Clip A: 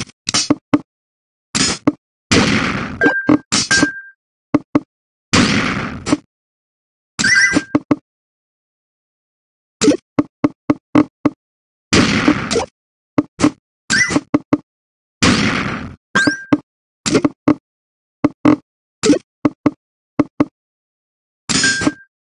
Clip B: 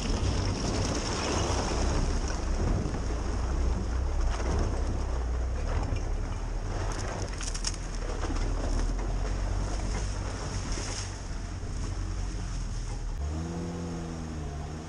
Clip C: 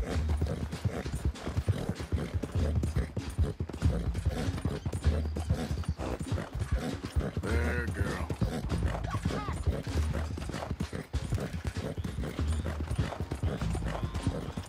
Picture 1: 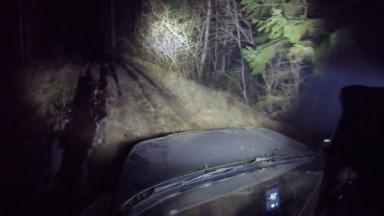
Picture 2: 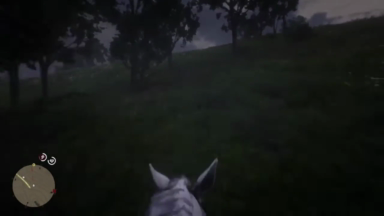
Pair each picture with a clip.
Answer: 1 B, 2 C